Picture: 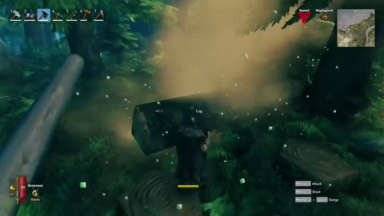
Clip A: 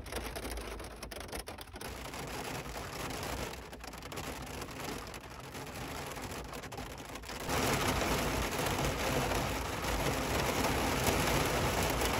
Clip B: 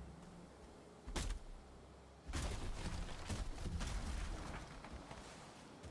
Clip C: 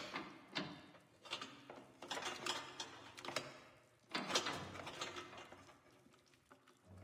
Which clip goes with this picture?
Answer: B